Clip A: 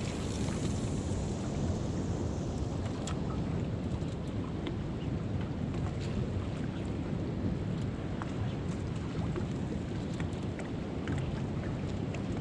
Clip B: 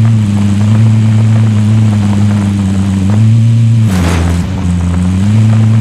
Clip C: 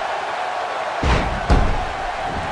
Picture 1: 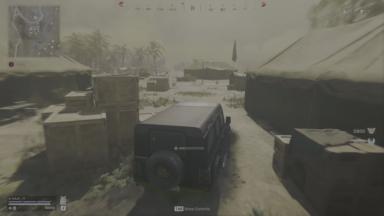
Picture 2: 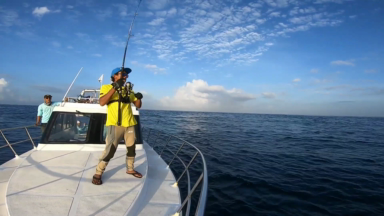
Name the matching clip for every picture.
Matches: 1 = B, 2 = A